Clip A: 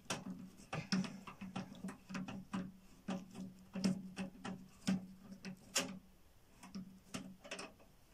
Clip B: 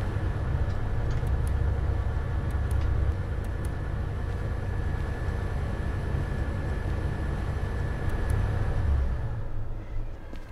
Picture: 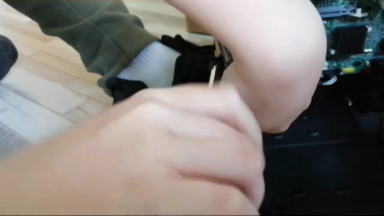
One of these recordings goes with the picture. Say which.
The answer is A